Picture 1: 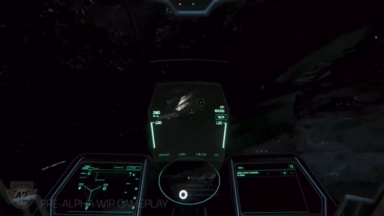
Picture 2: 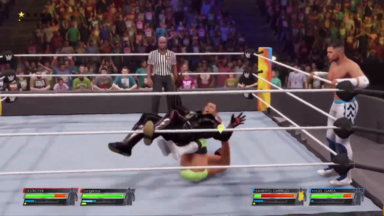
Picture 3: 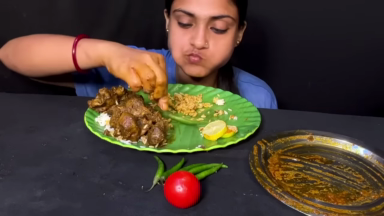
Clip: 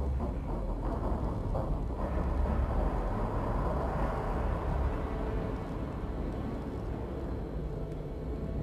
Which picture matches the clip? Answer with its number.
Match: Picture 1